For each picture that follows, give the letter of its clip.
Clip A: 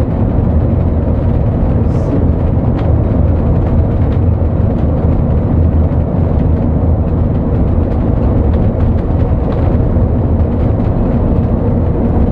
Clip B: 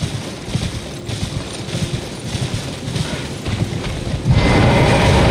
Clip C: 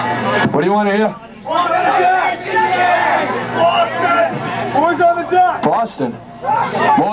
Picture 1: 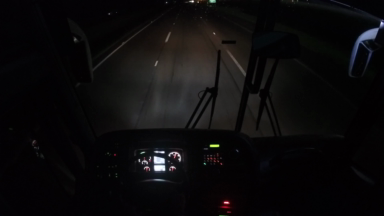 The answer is A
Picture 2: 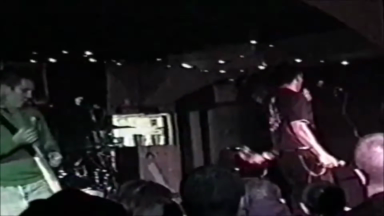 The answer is C